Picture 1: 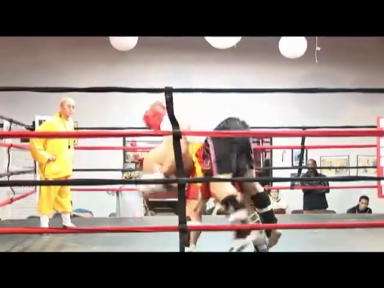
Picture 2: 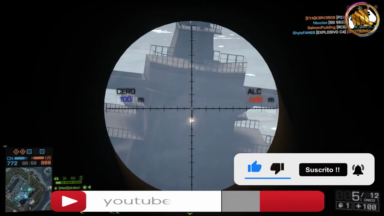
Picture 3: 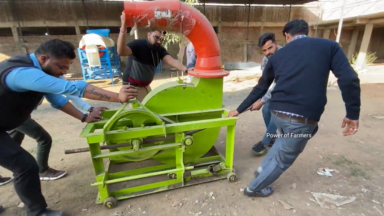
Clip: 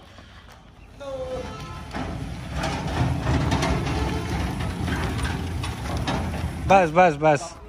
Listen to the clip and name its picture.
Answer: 3